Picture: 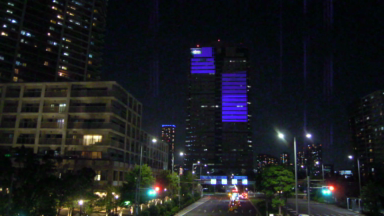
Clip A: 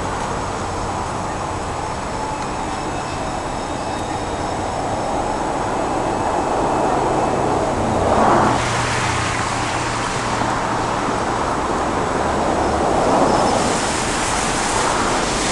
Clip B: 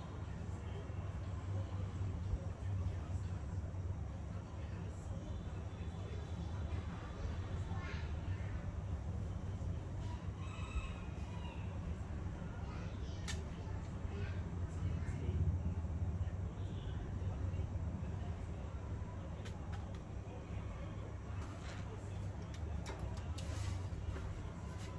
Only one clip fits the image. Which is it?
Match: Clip A